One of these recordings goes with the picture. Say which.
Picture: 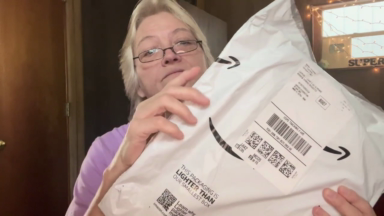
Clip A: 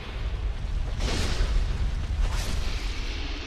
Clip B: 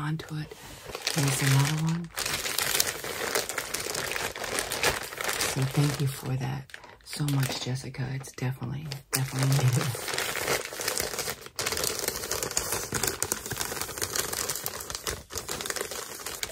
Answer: B